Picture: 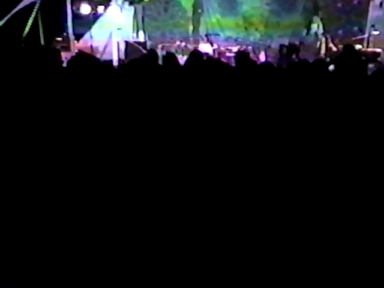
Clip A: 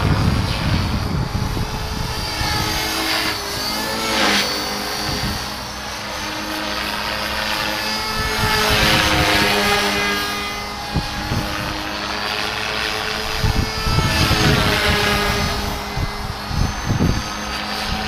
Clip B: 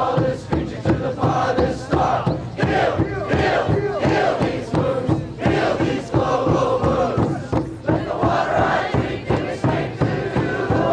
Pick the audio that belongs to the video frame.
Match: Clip B